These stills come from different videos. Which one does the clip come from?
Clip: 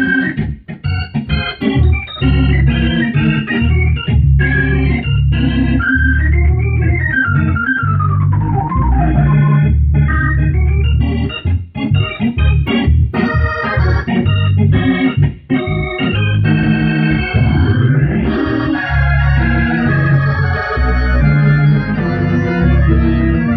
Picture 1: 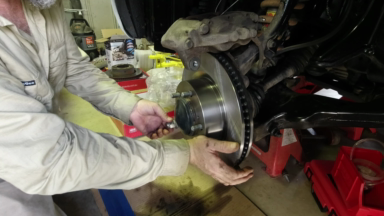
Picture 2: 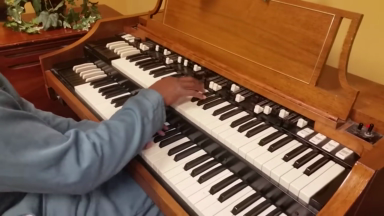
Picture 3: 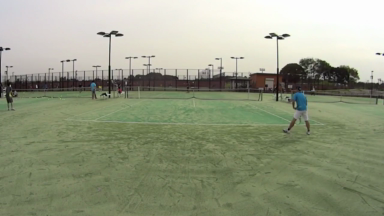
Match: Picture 2